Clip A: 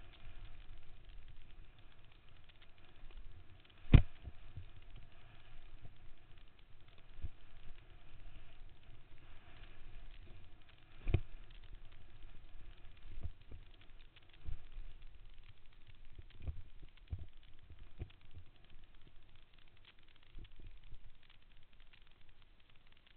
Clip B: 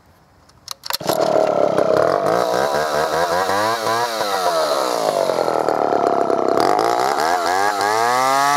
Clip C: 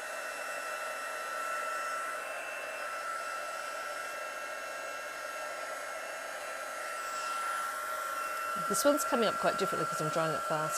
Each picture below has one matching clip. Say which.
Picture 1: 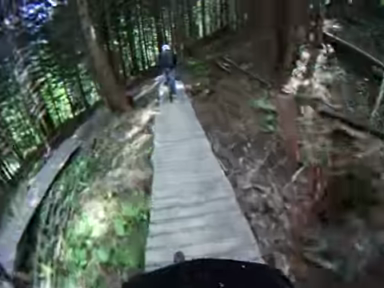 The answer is A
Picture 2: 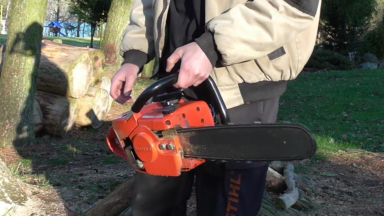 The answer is B